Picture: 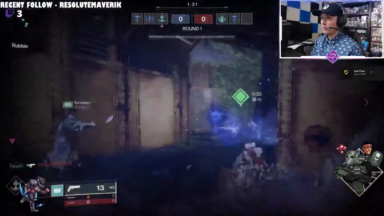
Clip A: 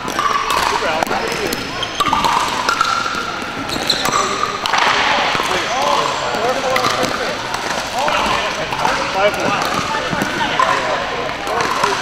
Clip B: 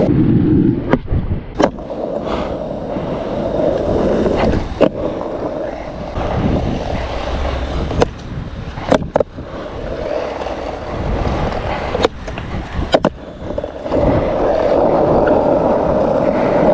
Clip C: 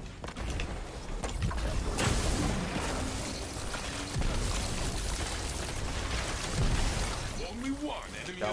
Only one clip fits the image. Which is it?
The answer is C